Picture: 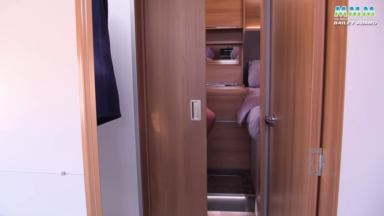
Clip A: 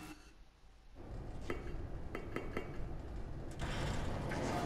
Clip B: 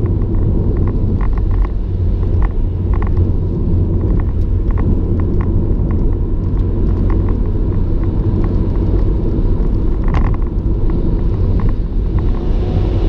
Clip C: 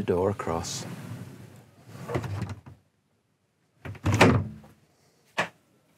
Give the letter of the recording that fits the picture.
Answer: C